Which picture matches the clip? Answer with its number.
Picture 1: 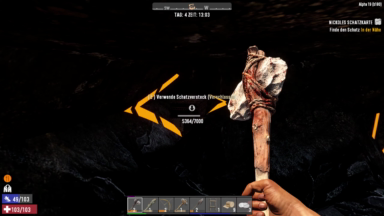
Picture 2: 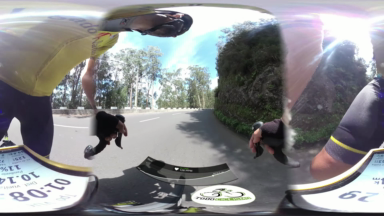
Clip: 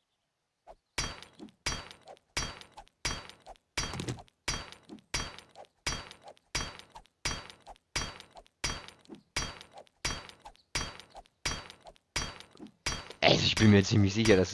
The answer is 1